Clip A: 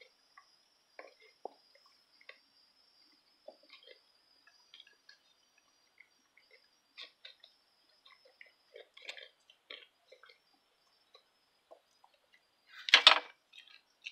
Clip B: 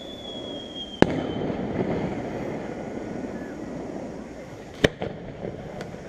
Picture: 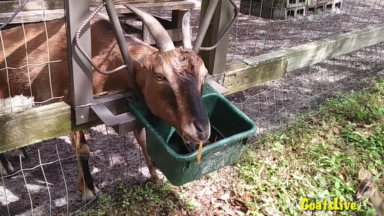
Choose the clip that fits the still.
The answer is A